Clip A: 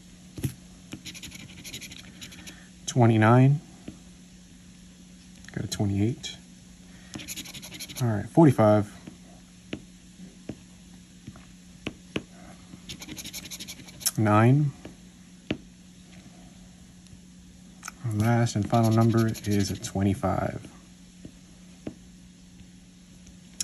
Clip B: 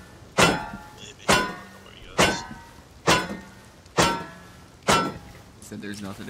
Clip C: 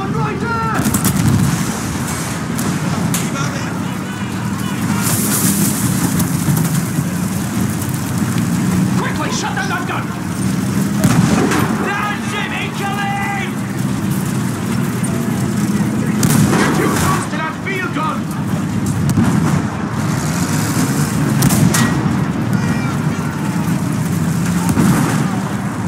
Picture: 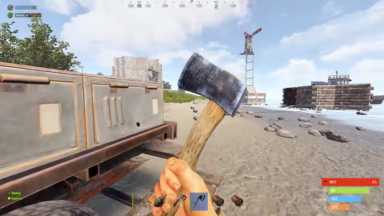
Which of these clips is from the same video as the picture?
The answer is B